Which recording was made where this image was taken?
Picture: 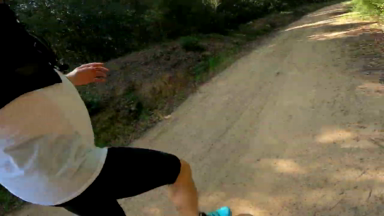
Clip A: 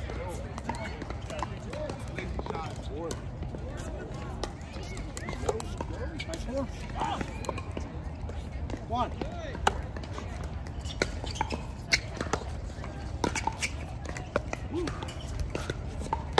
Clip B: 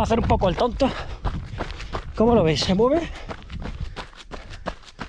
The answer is B